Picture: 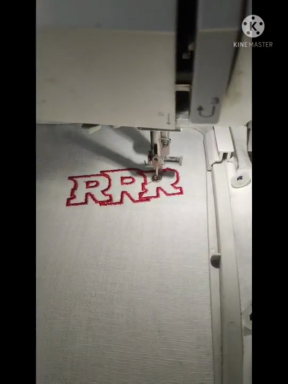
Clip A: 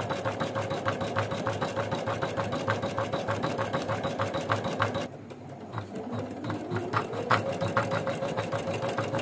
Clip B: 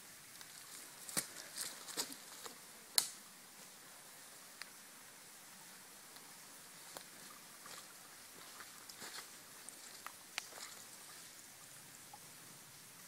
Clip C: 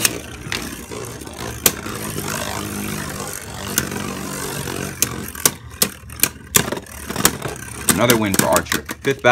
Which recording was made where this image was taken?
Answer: A